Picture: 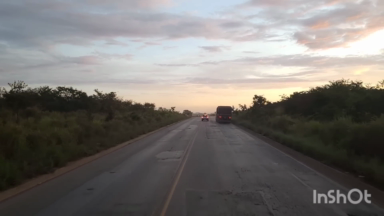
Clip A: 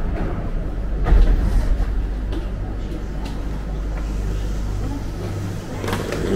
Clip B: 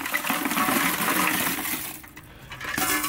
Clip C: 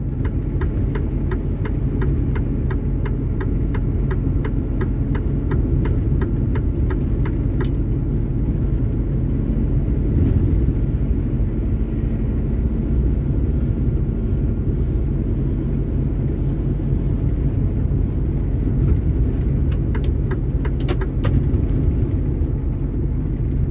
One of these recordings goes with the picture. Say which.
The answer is C